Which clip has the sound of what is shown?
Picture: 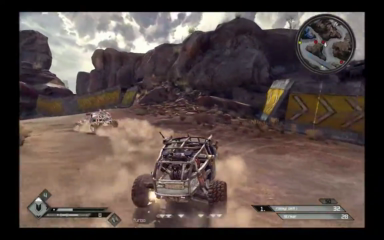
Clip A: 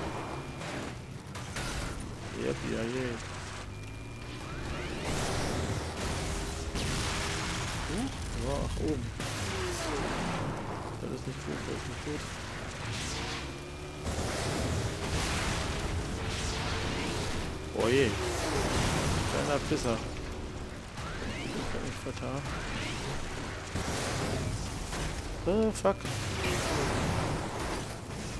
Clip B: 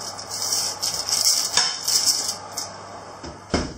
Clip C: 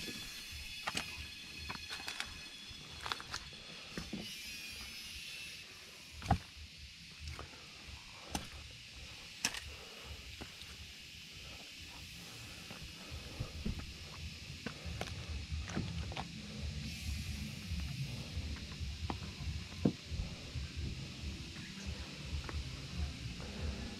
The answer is A